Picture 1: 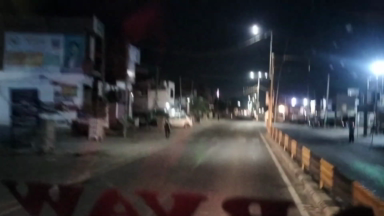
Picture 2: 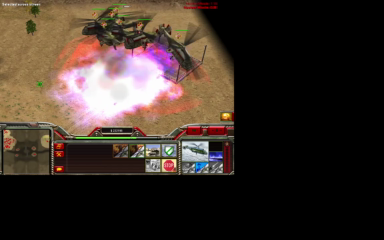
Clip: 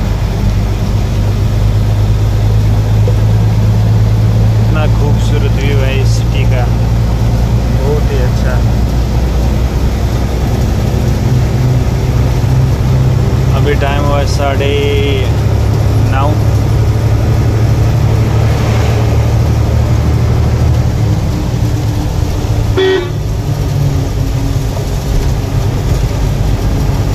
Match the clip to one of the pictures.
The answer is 1